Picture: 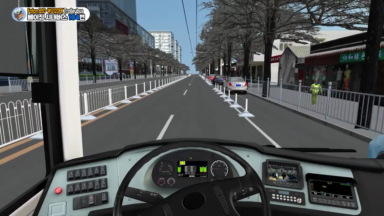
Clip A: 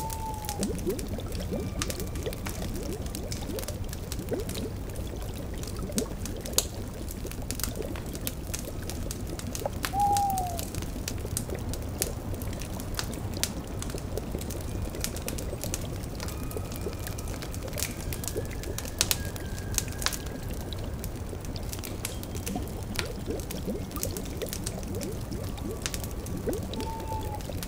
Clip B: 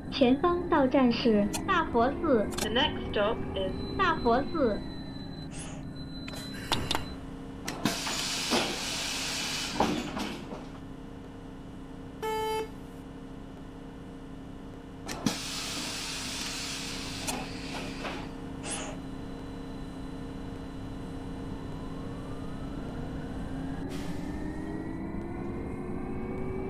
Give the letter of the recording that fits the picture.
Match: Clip B